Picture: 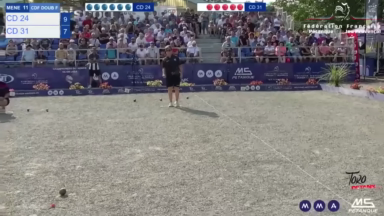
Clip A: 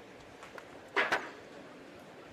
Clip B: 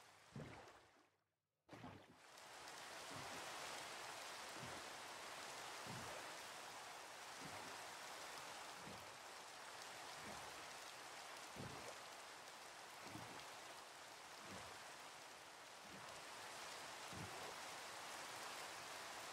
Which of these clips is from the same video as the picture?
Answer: A